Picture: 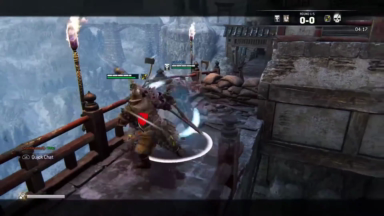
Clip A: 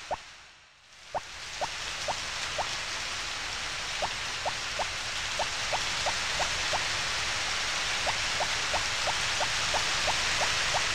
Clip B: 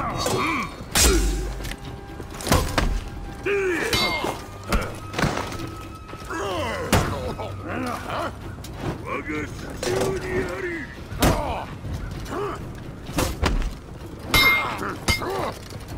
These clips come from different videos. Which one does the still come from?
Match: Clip B